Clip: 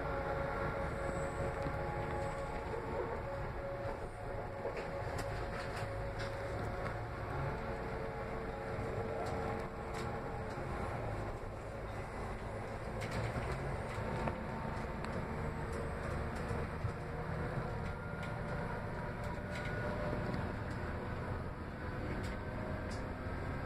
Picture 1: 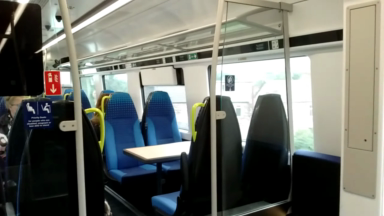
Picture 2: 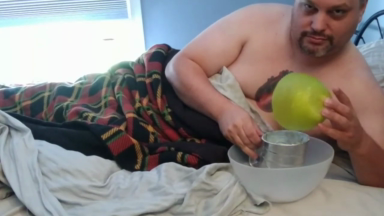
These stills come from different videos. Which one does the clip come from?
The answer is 1